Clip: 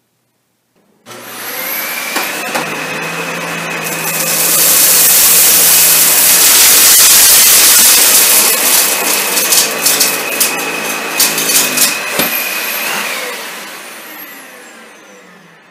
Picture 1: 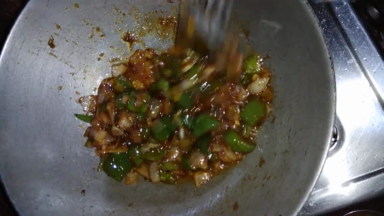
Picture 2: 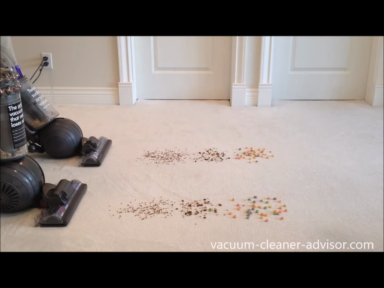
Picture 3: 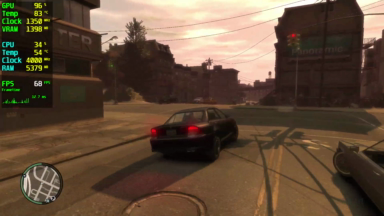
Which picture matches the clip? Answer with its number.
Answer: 2